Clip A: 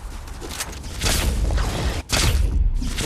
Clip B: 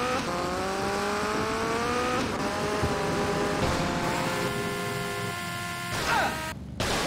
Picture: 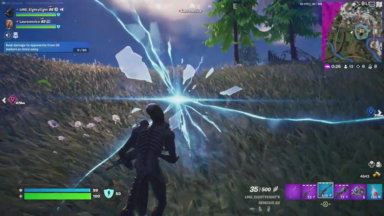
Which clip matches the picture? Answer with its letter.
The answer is A